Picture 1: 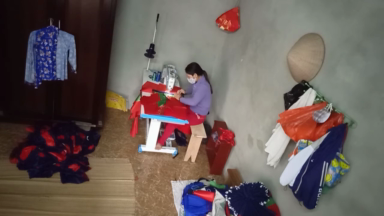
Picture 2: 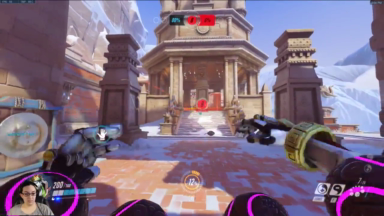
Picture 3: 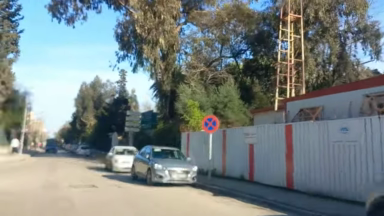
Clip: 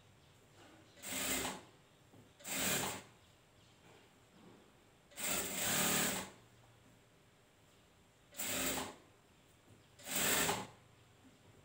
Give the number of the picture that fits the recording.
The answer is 1